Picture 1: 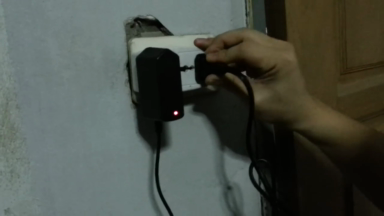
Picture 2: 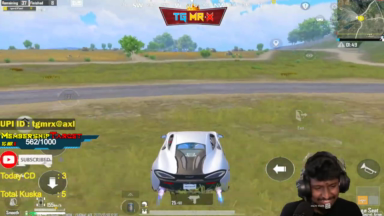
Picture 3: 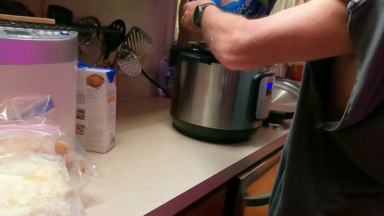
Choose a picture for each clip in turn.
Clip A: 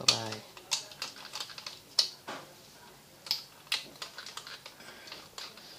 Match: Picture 1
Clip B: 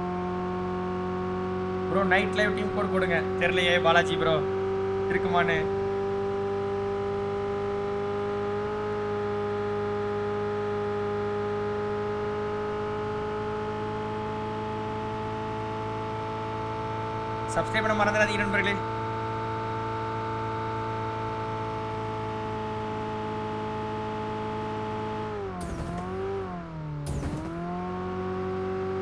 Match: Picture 2